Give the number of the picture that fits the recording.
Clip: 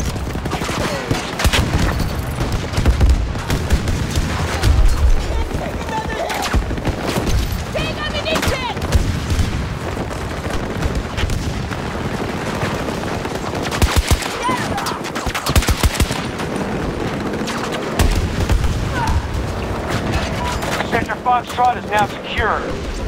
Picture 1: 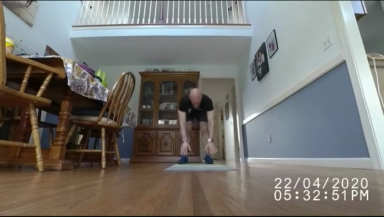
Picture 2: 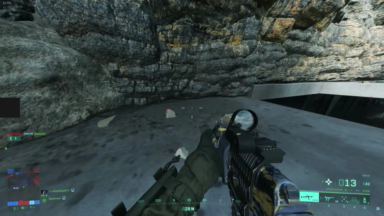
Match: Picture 2